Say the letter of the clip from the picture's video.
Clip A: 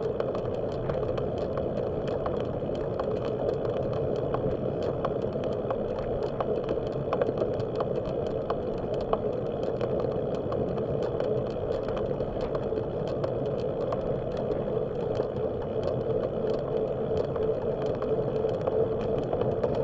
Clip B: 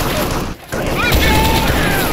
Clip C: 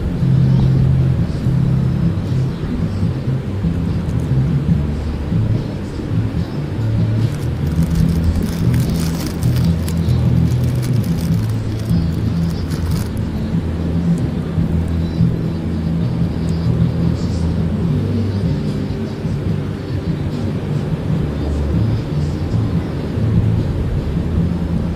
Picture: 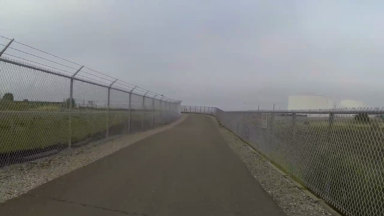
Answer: A